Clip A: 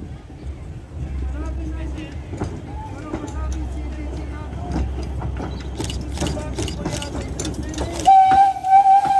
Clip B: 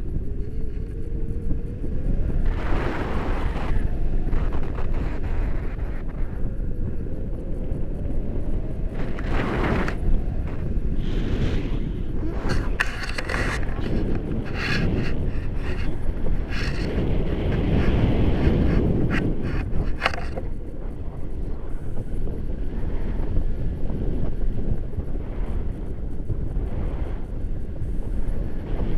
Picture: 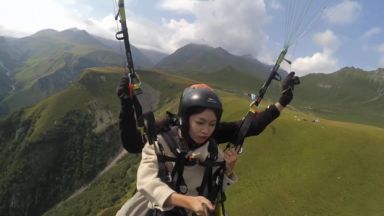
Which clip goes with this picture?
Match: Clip B